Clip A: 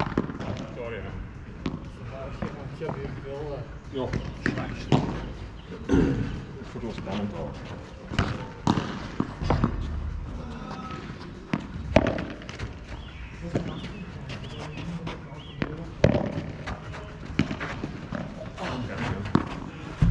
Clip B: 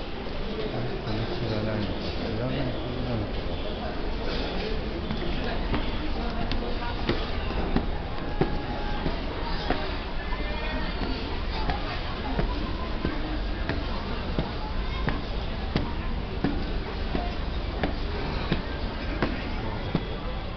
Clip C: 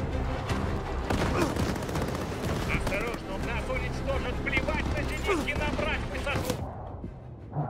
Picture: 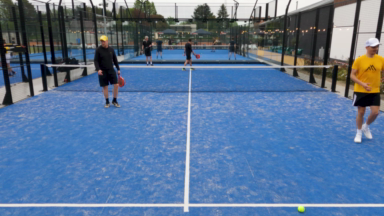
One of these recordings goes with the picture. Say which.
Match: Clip A